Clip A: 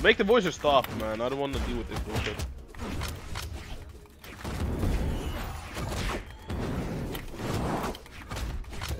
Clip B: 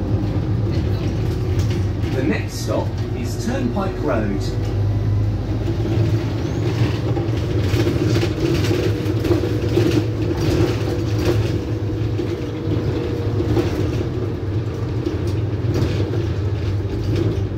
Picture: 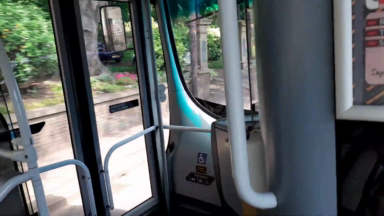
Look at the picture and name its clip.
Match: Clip B